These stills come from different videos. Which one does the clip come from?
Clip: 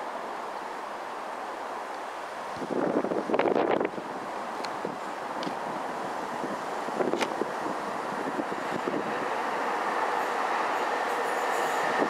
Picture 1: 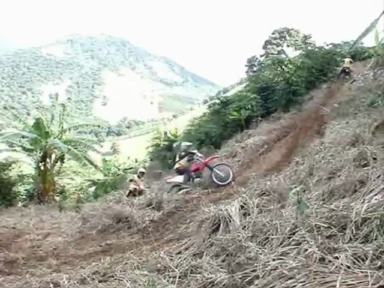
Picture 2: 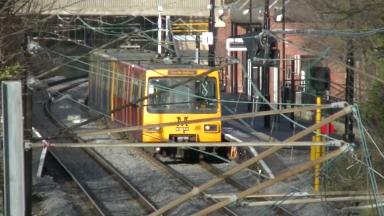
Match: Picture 2